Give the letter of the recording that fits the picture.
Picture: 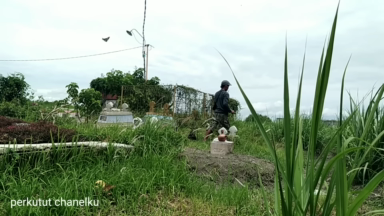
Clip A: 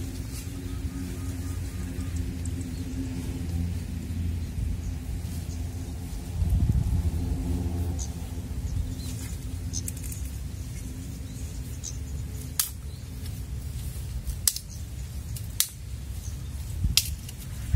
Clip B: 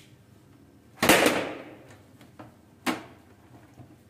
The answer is A